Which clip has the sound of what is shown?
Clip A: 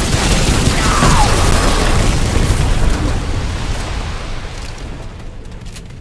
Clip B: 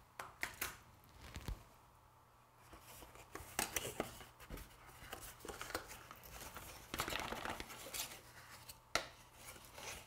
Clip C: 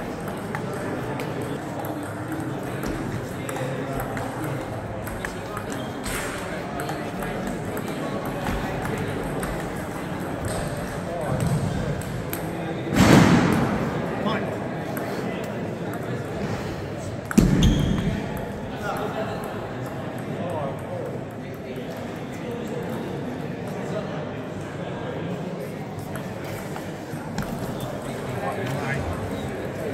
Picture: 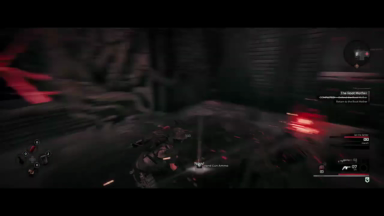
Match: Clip A